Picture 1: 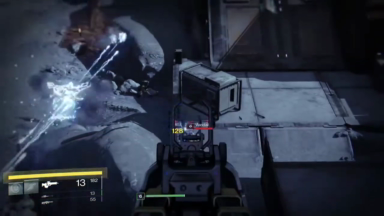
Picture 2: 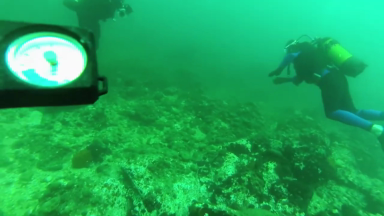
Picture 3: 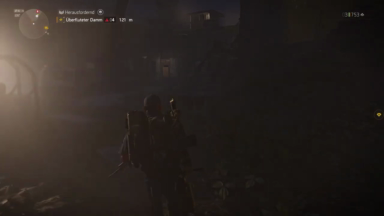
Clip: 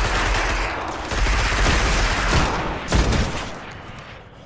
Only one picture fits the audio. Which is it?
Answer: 1